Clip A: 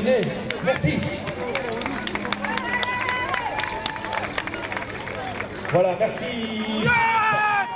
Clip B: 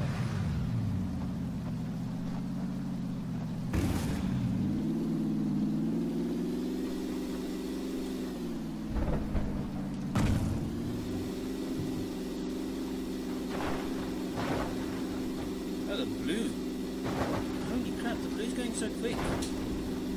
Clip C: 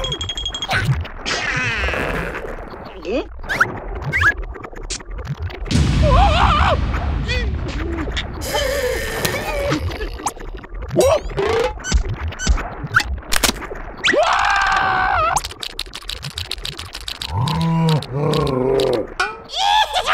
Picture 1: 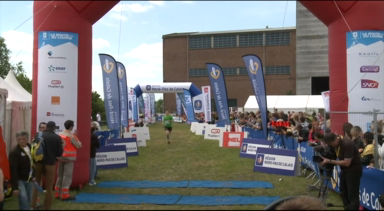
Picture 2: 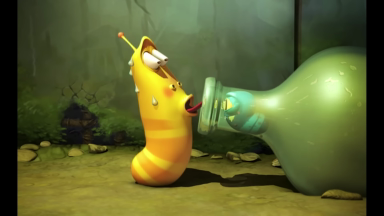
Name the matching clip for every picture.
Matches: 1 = A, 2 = C